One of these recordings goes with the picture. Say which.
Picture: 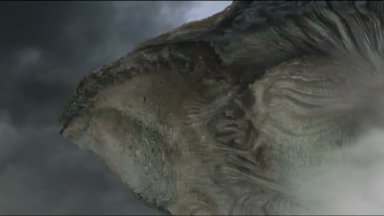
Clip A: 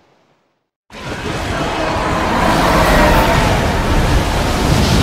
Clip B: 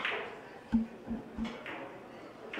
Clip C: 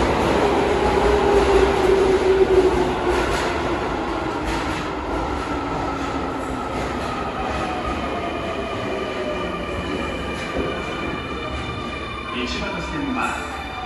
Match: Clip A